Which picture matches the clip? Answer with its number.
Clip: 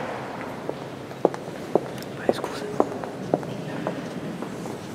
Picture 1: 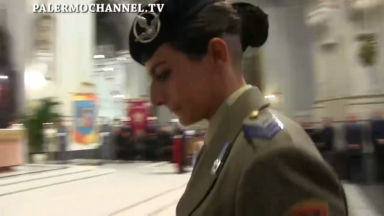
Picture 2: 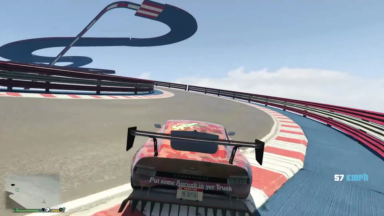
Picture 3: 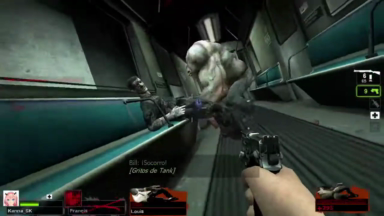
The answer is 1